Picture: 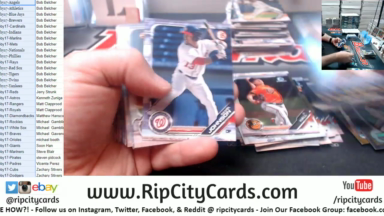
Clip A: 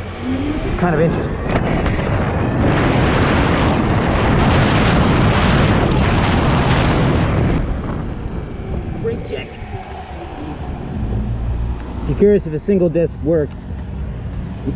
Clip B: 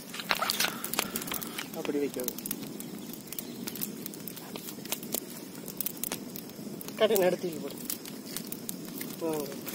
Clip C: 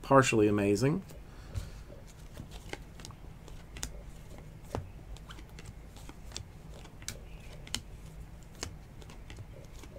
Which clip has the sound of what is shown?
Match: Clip C